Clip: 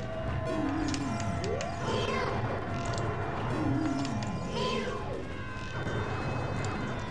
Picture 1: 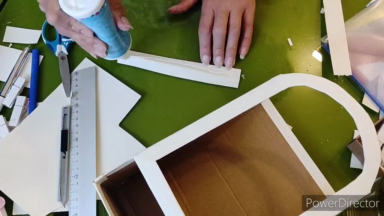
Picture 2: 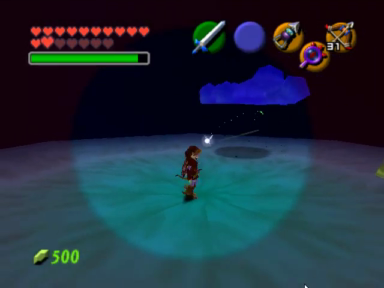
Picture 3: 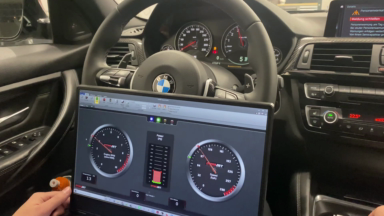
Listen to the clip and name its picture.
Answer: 2